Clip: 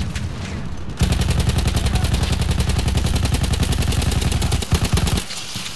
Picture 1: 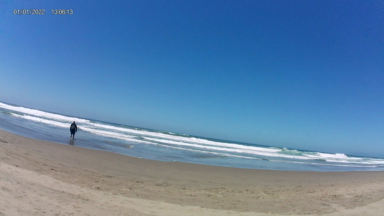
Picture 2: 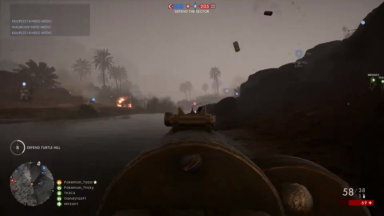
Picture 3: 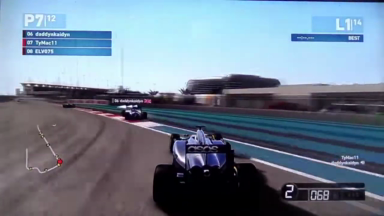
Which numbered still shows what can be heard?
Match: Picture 2